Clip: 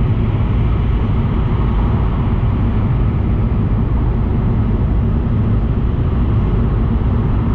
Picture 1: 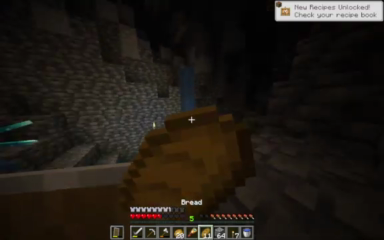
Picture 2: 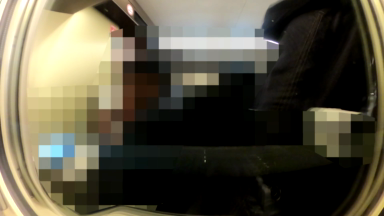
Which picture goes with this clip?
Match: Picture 2